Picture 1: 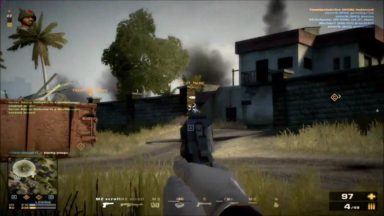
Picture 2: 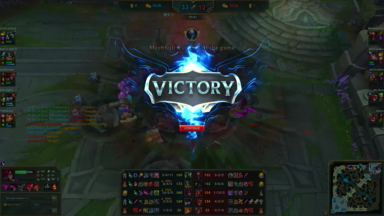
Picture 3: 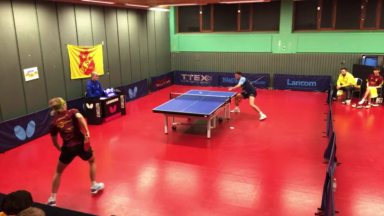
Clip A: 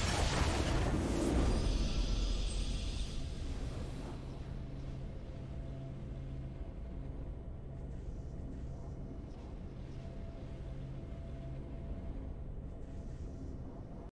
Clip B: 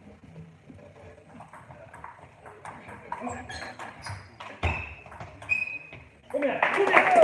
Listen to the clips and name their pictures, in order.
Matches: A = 2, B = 3